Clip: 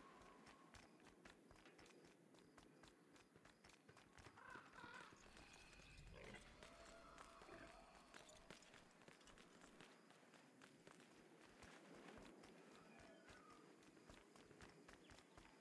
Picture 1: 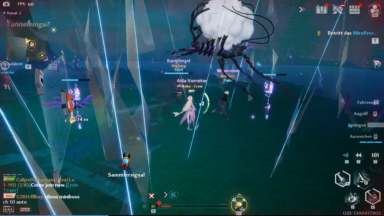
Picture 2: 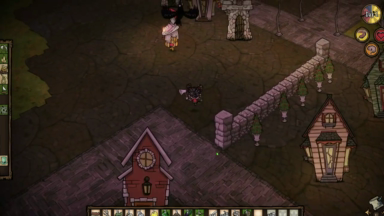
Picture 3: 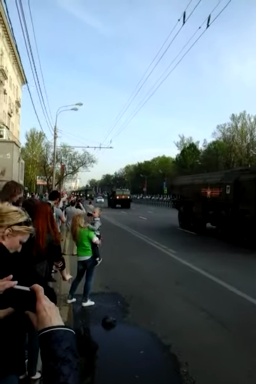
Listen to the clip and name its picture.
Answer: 2